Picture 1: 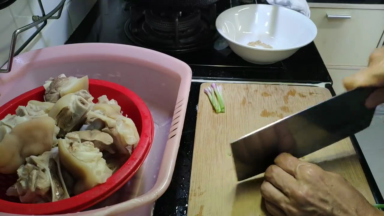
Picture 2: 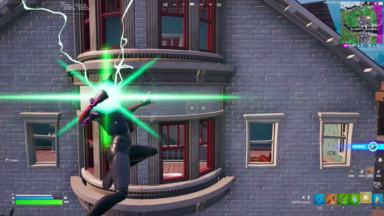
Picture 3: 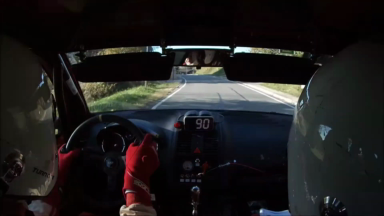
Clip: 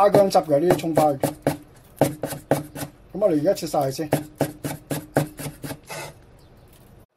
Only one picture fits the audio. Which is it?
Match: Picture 1